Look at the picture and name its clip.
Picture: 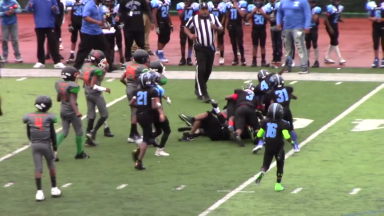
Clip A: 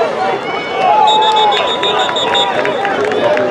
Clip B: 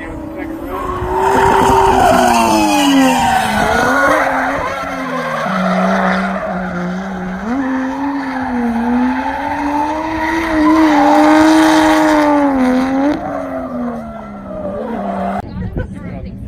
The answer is A